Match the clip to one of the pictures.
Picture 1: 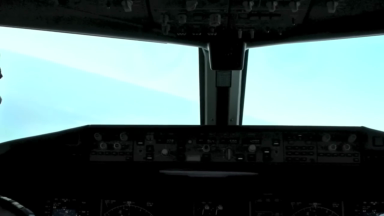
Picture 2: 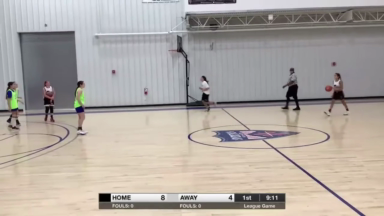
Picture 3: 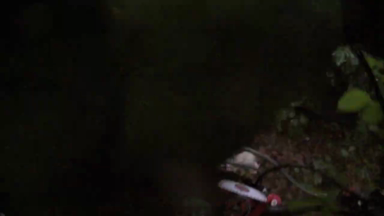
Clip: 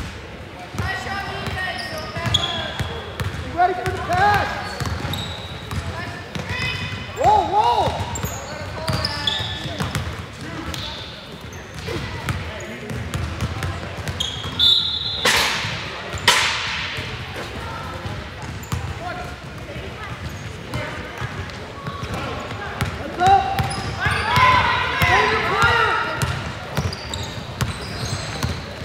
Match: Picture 2